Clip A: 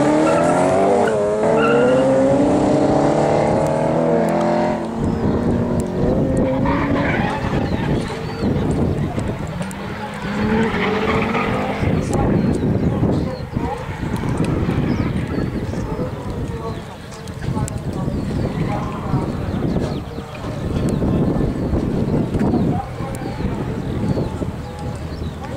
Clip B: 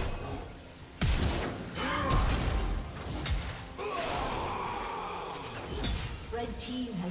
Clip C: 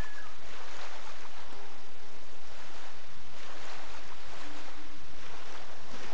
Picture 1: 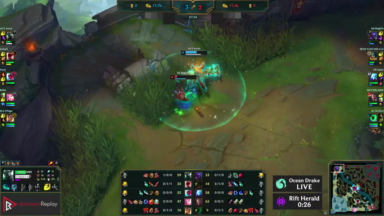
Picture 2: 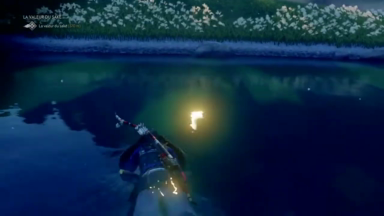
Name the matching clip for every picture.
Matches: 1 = B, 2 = C